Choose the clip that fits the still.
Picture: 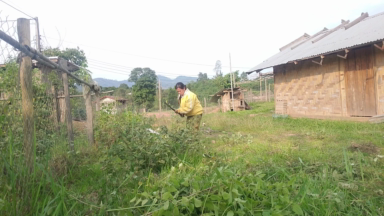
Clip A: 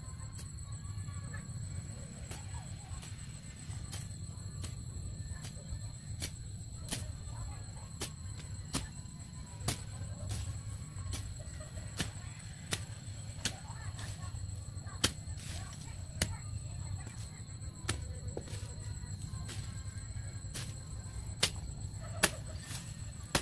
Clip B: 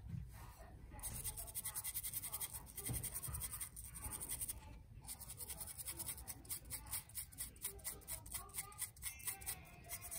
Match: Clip A